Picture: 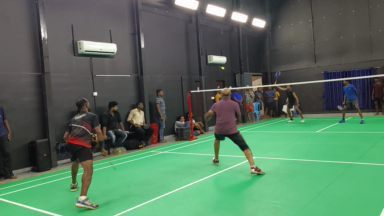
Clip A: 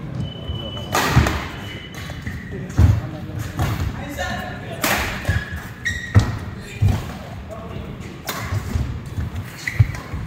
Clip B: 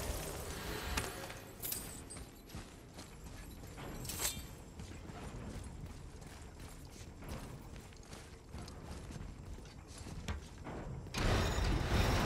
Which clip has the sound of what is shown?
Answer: A